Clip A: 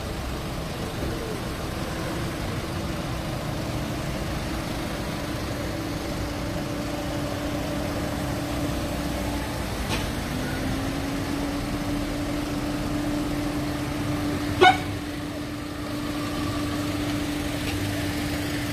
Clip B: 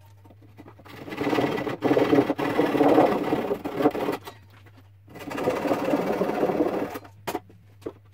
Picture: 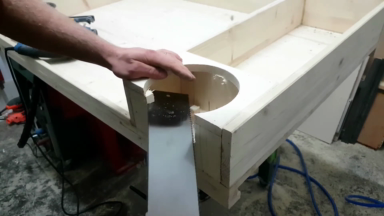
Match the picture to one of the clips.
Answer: B